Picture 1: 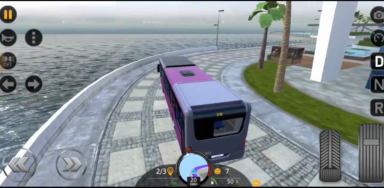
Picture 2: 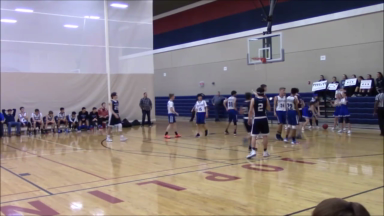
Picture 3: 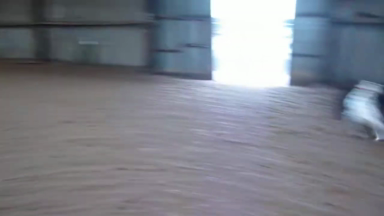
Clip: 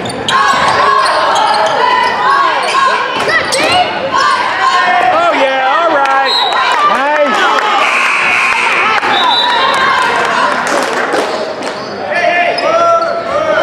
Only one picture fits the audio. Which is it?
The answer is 2